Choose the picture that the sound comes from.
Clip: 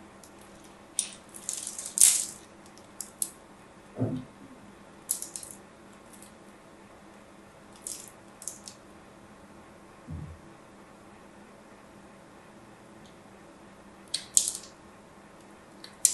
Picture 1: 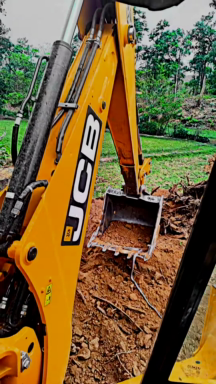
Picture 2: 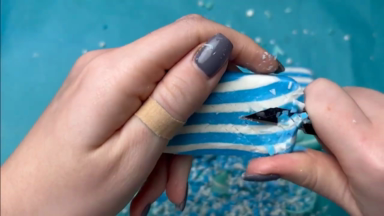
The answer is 2